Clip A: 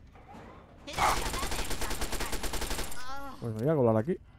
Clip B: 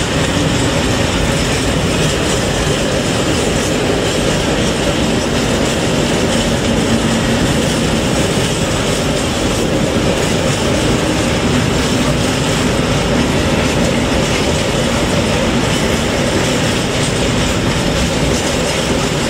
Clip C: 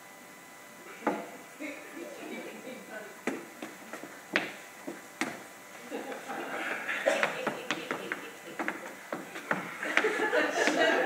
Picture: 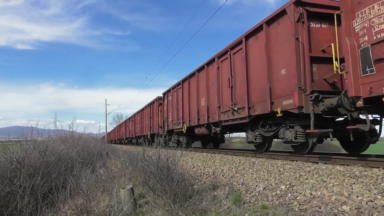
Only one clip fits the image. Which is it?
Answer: B